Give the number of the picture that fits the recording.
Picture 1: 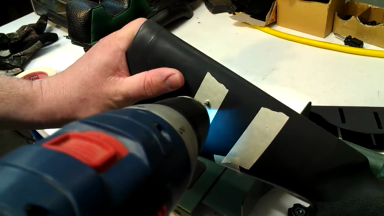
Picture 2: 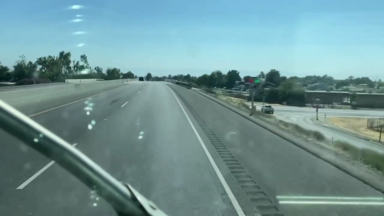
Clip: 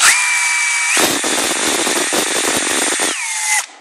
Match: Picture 1